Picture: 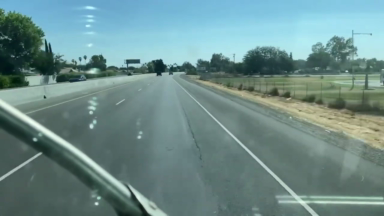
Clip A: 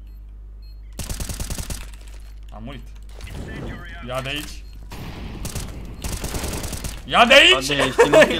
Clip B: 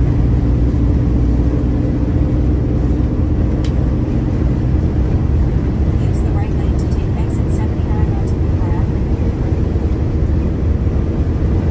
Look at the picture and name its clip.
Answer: B